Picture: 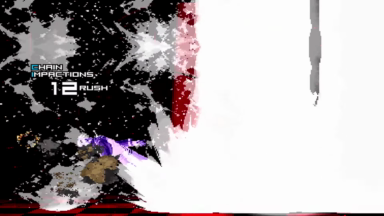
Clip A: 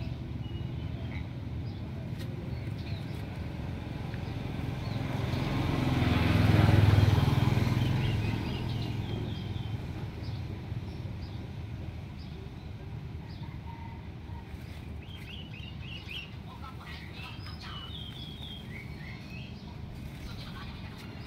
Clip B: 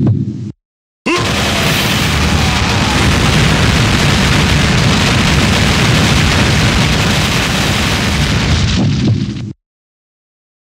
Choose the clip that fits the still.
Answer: B